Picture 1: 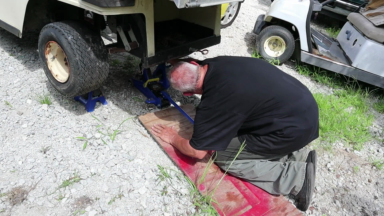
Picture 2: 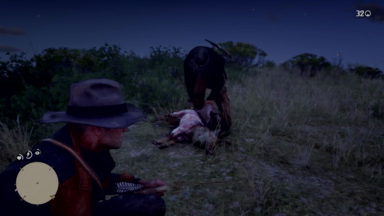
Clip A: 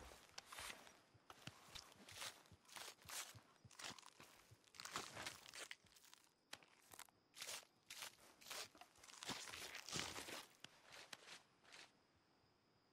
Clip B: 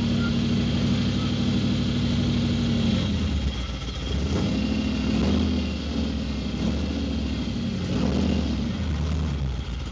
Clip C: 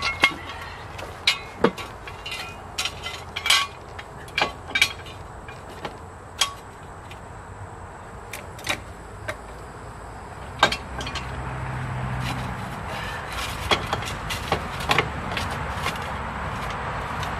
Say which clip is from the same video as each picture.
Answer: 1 C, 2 A